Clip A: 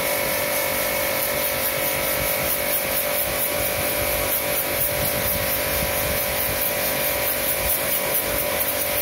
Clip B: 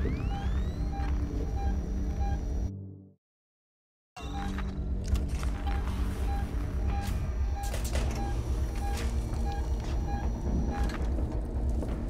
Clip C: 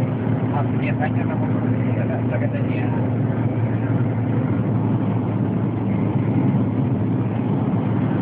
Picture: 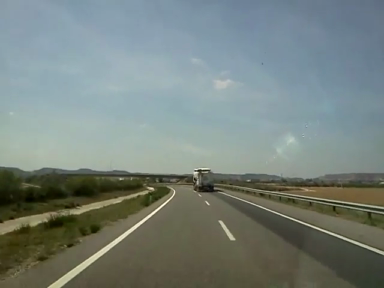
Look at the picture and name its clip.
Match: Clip C